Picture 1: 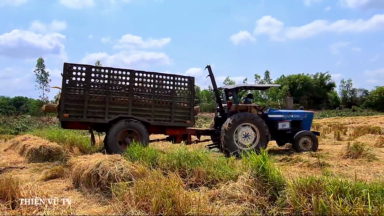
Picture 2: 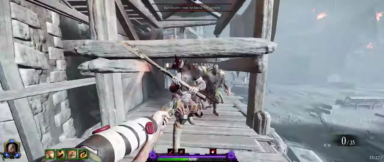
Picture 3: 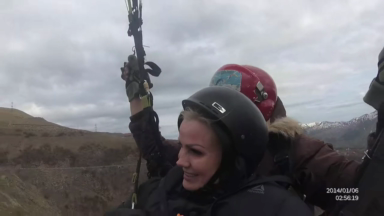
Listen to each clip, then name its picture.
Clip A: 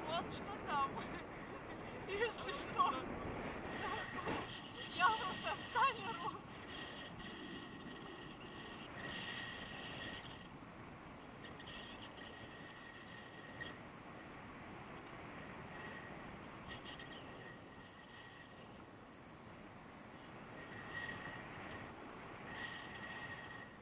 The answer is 3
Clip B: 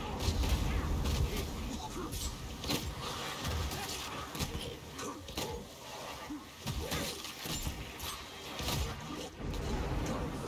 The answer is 2